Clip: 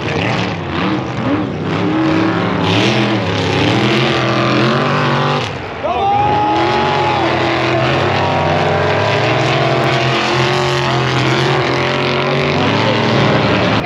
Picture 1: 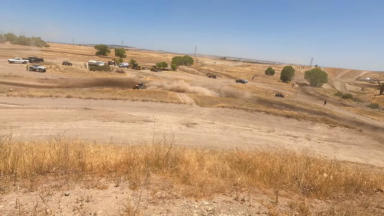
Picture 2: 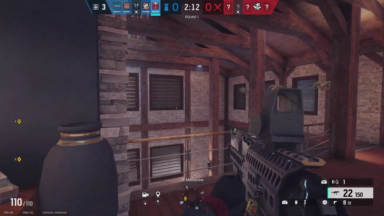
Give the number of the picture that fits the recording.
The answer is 1